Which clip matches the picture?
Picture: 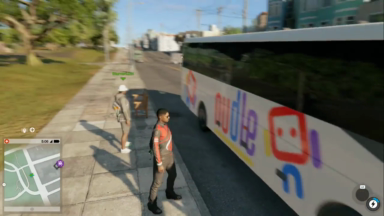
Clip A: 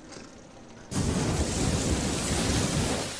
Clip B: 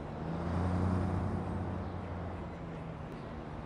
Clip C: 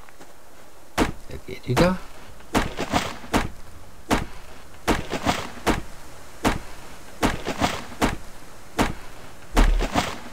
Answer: B